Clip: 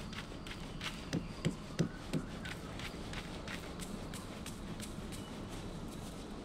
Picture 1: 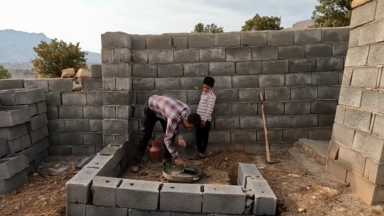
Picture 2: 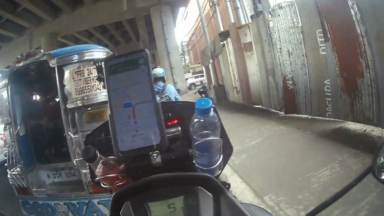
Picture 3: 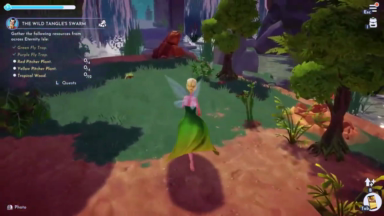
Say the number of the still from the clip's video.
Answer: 3